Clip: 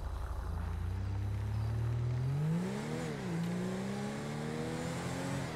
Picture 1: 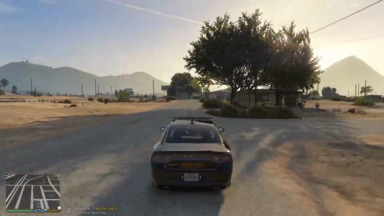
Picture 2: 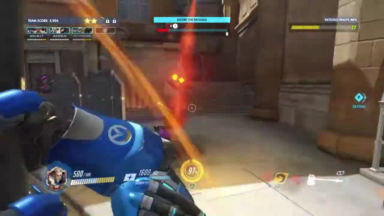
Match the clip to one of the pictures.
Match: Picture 1